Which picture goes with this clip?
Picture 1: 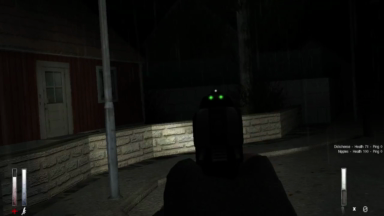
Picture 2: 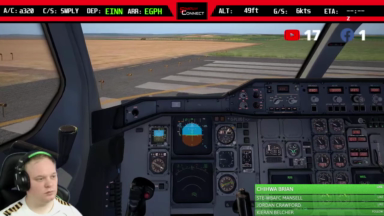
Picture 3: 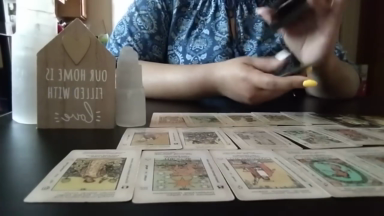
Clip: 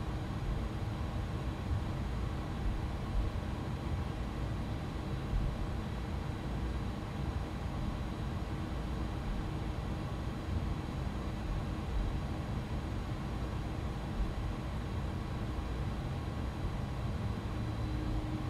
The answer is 2